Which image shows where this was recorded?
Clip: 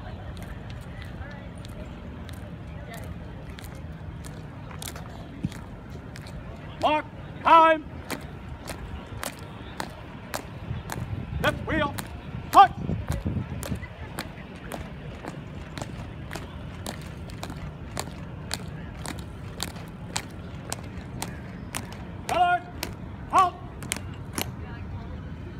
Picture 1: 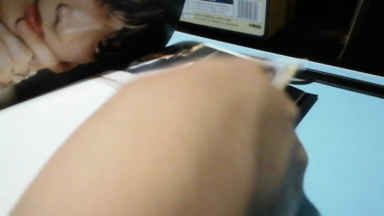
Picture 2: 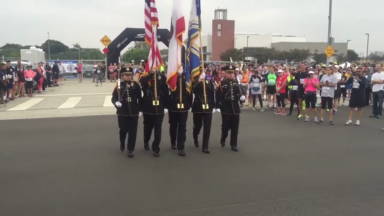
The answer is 2